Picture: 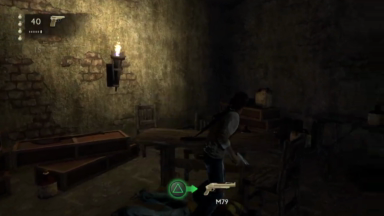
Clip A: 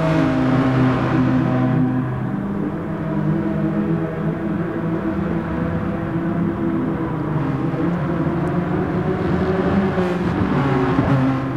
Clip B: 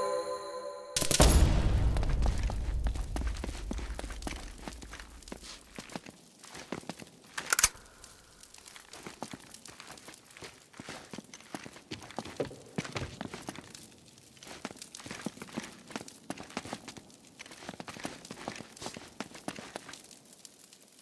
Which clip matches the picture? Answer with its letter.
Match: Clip B